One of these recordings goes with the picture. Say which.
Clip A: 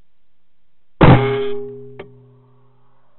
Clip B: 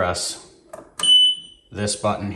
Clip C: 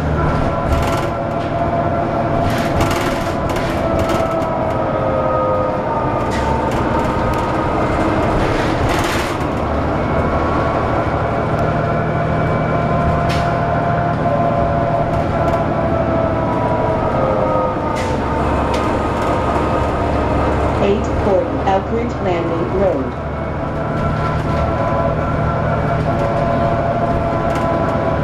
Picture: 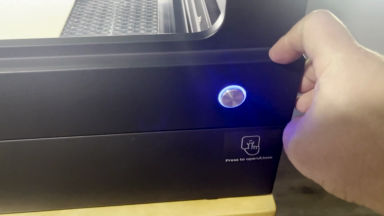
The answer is B